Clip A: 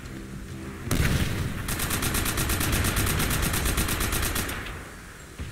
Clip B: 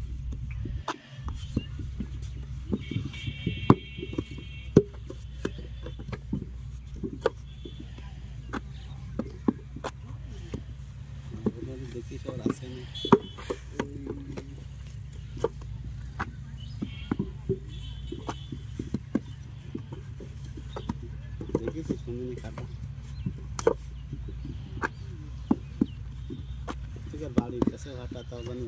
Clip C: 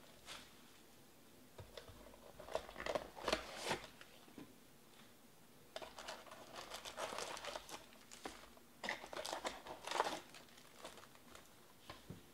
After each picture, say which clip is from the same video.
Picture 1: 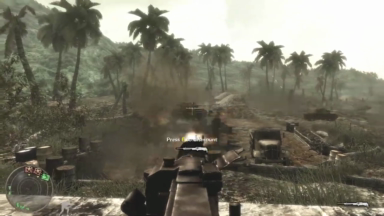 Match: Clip A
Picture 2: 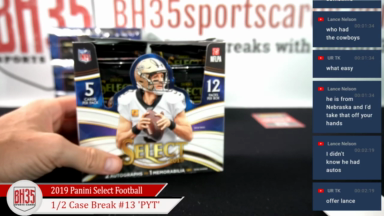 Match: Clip C